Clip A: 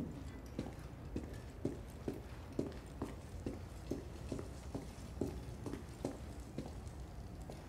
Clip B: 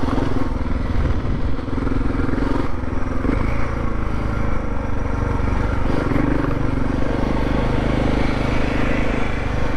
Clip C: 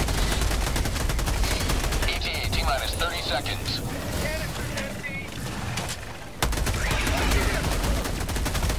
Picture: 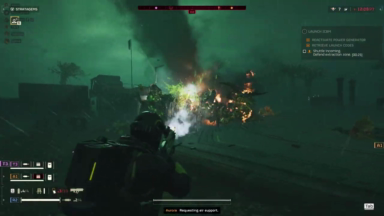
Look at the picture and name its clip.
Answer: C